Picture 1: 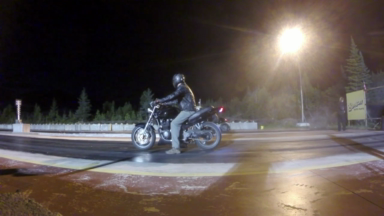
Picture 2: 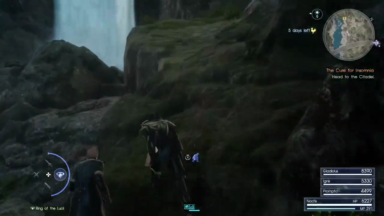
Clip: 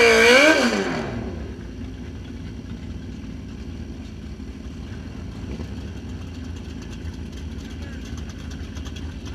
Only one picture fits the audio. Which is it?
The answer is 1